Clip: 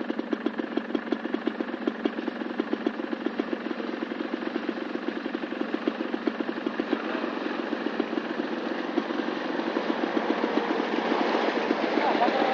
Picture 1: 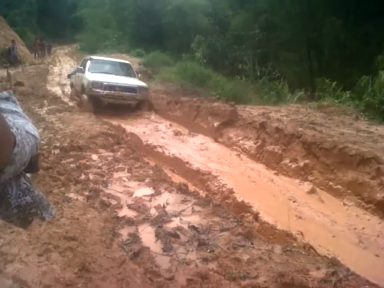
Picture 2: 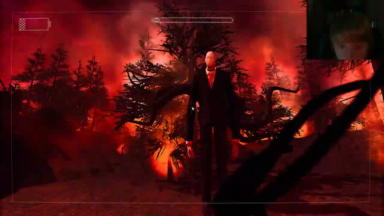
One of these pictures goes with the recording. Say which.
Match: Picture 1